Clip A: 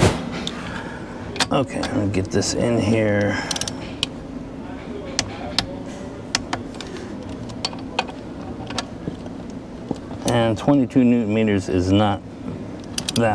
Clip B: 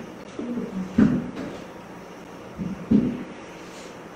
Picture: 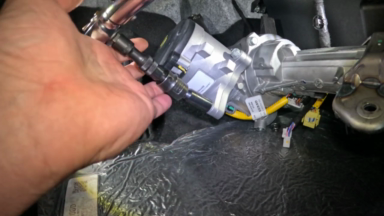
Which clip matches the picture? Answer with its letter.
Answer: A